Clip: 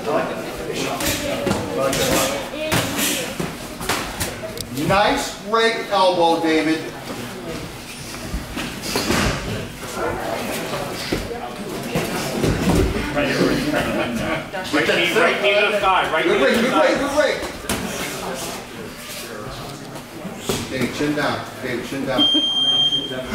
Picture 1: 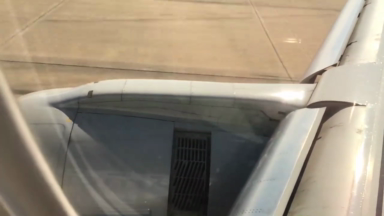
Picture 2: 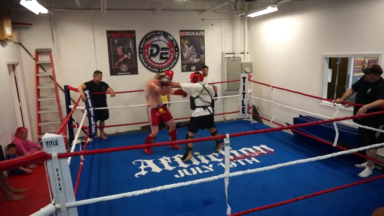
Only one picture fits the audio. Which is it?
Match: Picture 2